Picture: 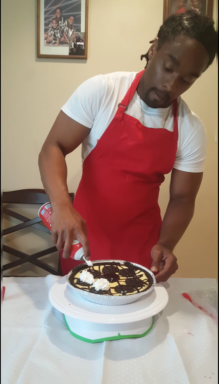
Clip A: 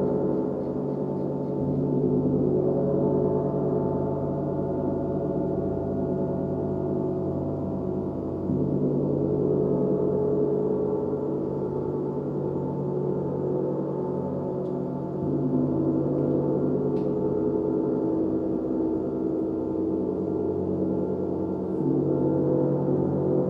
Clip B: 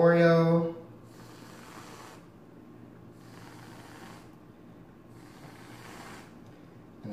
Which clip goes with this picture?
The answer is B